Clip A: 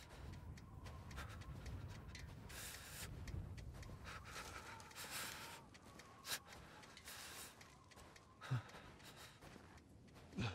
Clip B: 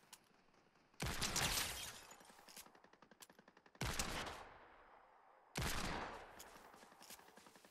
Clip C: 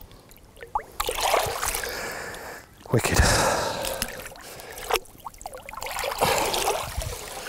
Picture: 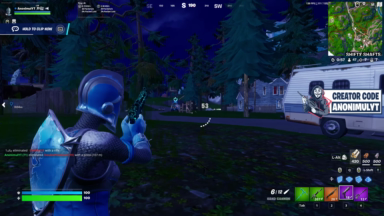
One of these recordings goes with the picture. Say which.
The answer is B